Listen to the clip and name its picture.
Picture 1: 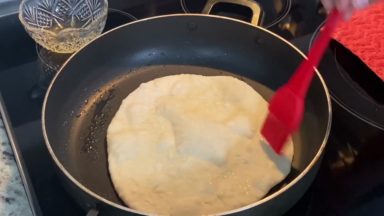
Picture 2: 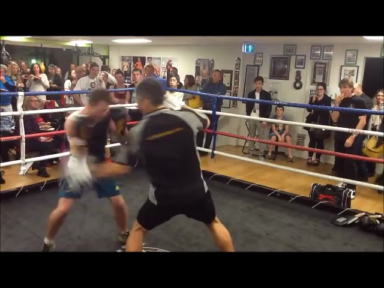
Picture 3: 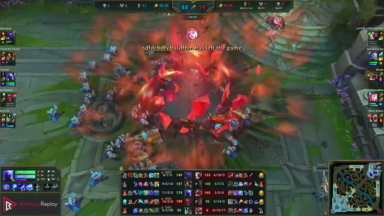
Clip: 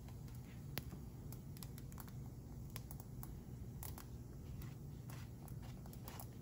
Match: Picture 1